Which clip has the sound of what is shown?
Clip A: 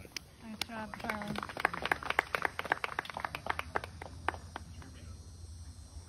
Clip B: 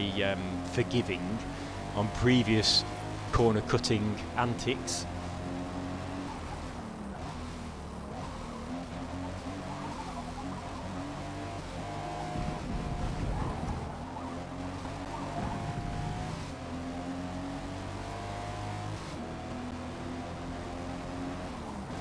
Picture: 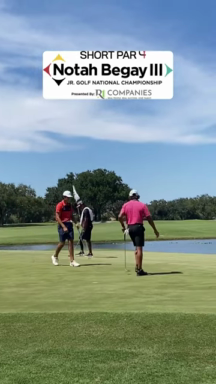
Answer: A